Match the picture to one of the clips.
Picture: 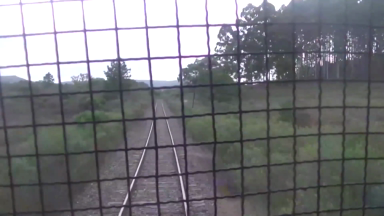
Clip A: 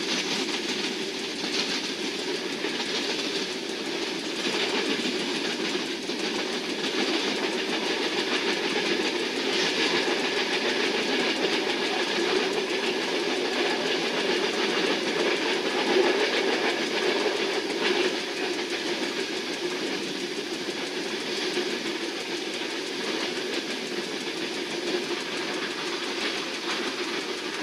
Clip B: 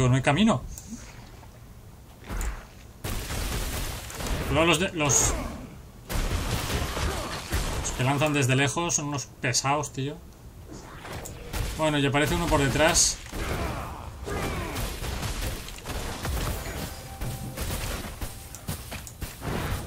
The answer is A